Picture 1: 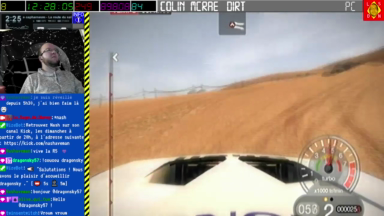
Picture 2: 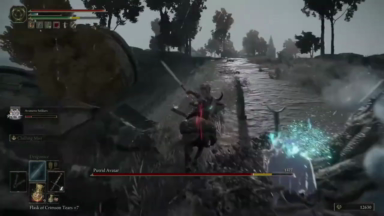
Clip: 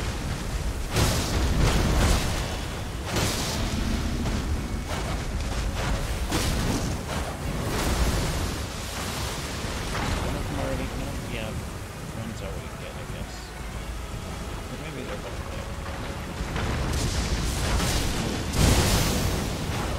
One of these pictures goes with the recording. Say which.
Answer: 2